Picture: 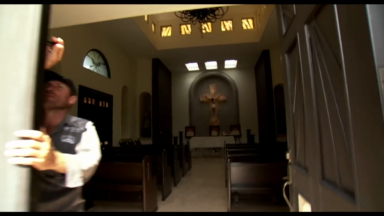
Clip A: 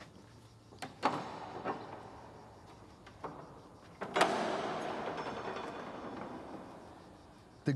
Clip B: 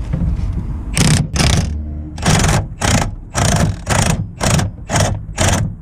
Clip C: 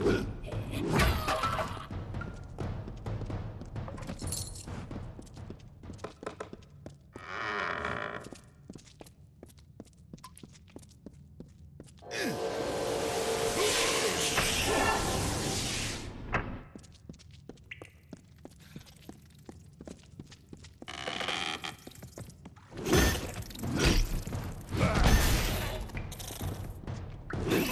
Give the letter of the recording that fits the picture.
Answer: A